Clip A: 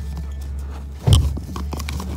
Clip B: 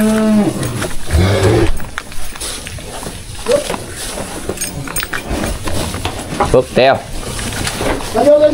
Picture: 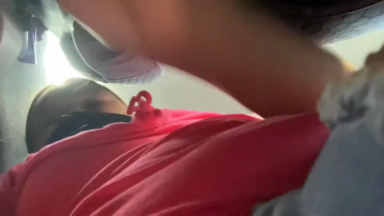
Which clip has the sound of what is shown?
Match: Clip A